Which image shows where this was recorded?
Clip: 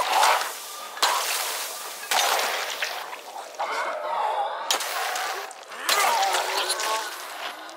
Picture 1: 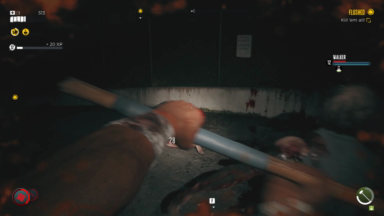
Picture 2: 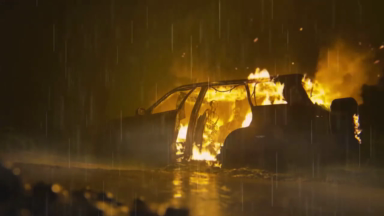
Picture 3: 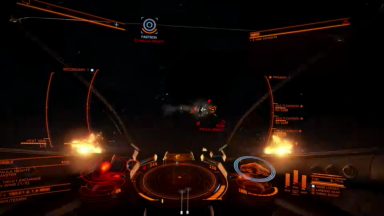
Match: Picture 1